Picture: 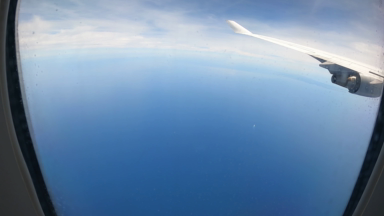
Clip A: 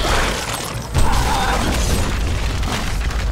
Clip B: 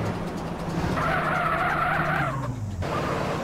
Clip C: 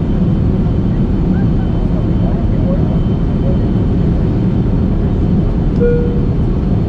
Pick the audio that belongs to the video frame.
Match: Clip C